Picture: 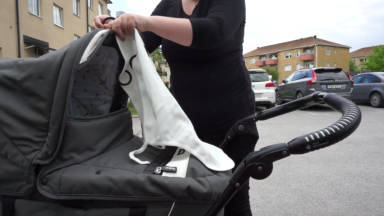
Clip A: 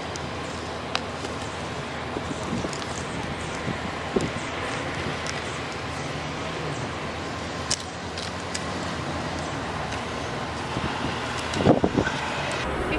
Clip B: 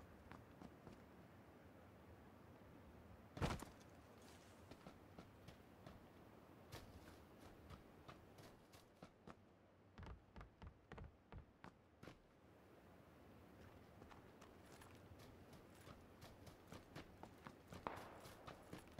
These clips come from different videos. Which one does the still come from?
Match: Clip A